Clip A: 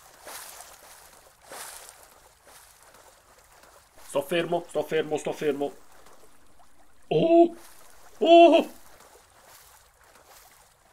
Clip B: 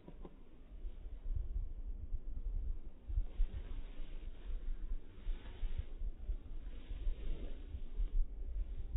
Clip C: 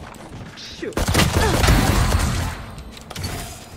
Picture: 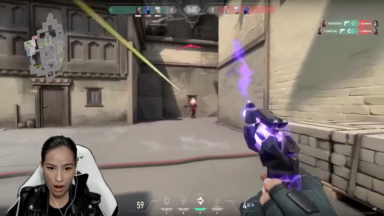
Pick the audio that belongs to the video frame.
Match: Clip C